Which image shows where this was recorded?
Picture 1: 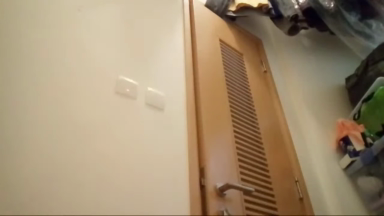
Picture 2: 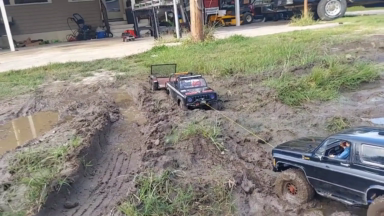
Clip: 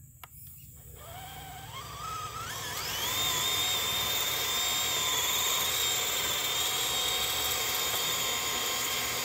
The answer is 2